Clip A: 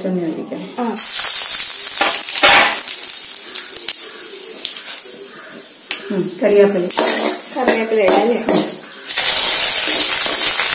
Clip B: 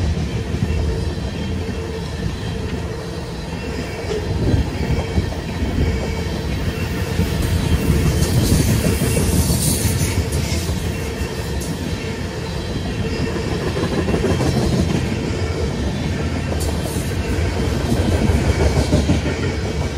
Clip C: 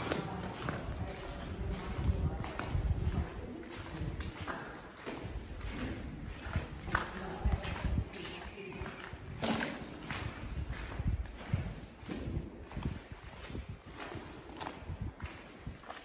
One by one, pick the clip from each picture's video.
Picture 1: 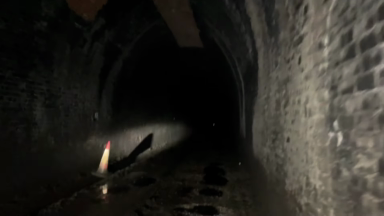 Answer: C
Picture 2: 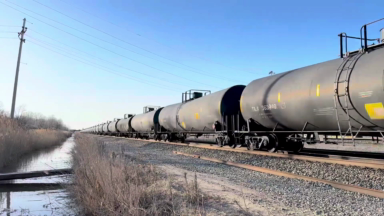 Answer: B